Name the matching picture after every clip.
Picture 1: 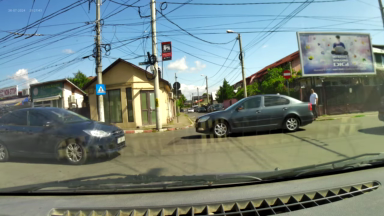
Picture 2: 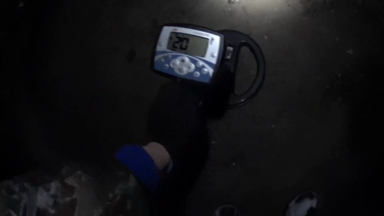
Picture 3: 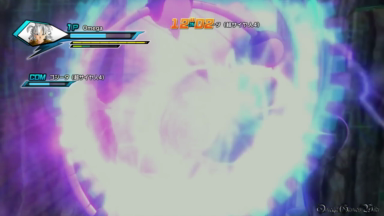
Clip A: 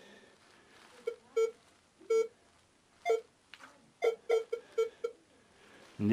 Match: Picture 2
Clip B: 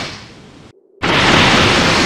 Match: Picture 3